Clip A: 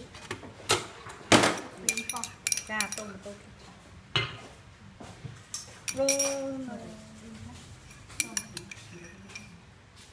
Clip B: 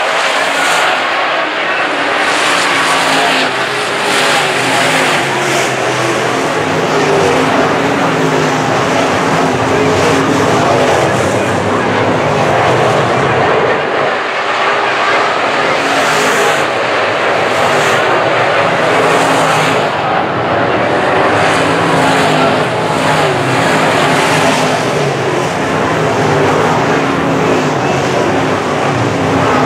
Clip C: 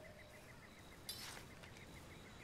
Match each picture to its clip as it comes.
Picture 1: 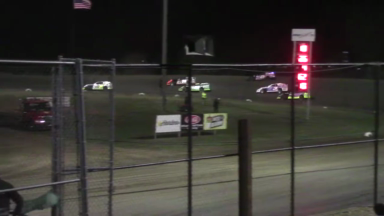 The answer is B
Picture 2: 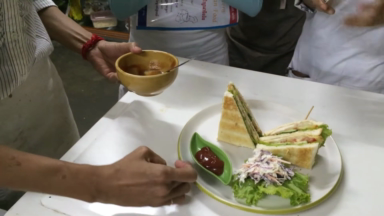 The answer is A